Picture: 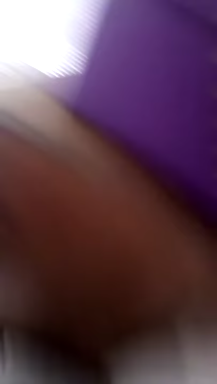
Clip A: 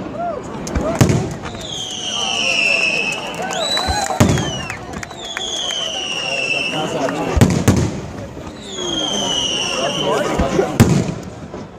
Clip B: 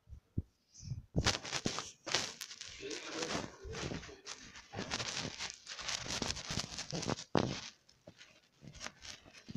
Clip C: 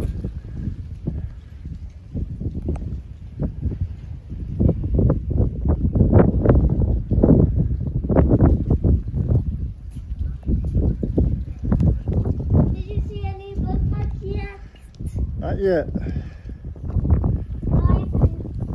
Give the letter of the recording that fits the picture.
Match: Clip B